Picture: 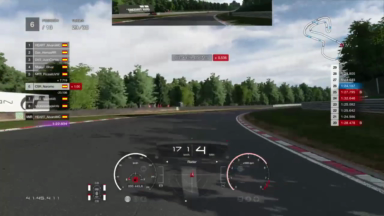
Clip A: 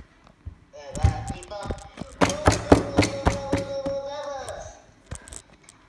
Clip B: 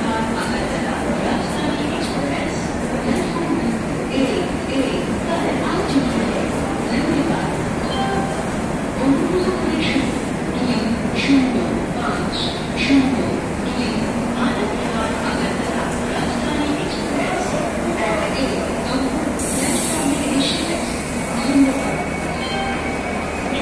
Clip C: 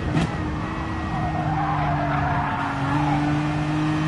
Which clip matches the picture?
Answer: C